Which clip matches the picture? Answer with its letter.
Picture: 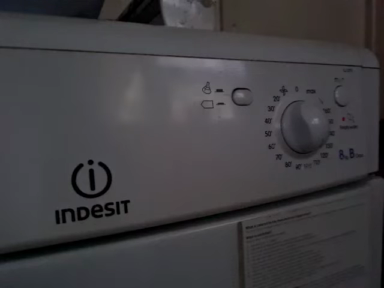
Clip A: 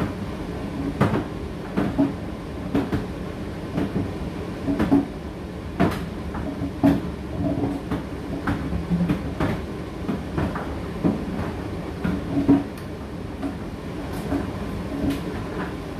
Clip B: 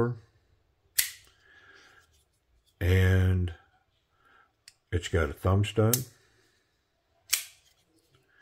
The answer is A